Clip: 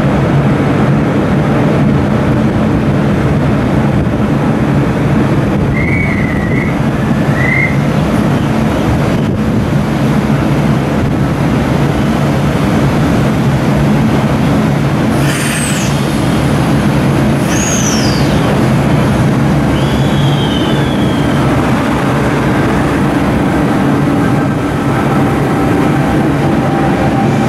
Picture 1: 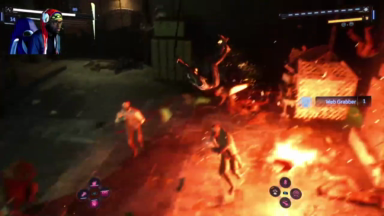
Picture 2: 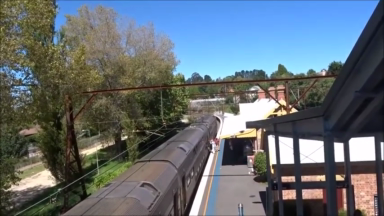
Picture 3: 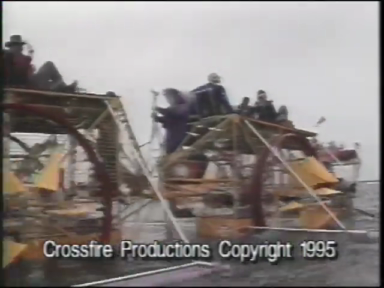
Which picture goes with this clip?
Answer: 2